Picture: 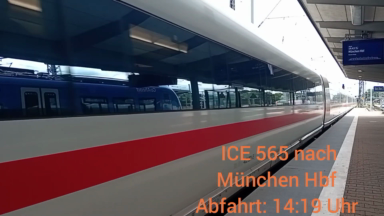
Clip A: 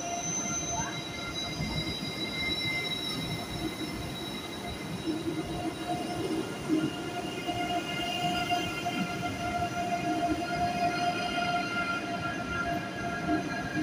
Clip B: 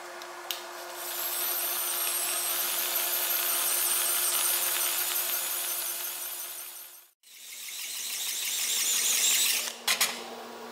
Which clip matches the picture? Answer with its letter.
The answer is A